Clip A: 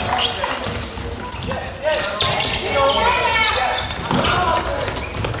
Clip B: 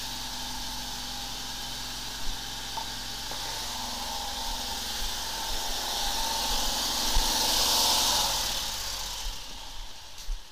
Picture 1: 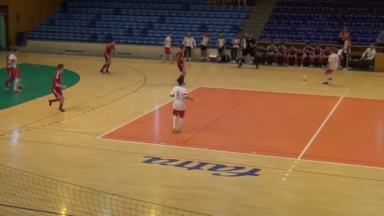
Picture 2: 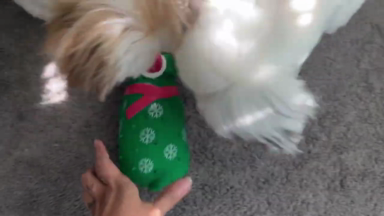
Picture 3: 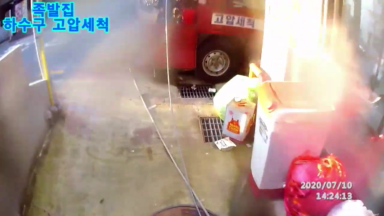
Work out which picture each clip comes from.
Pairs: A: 1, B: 3